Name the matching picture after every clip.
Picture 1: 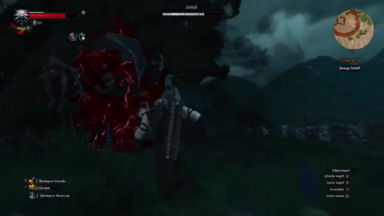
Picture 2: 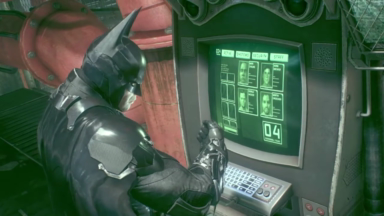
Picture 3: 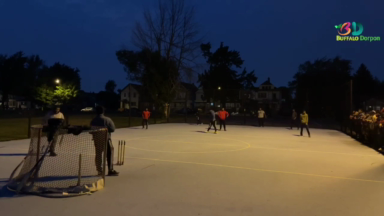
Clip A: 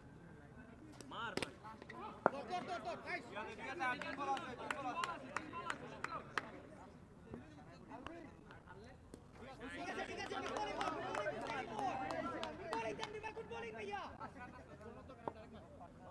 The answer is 3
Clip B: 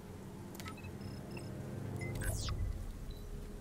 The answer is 2